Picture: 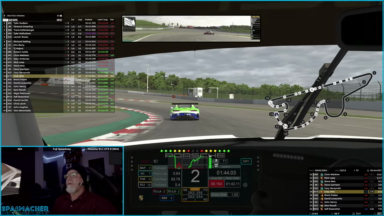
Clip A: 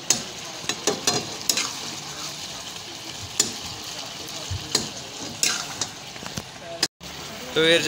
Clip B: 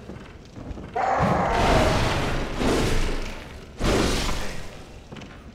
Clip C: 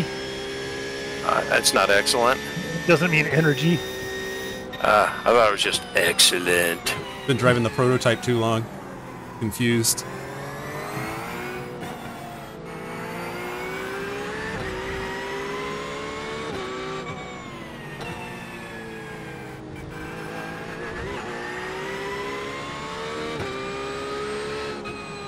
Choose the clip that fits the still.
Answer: C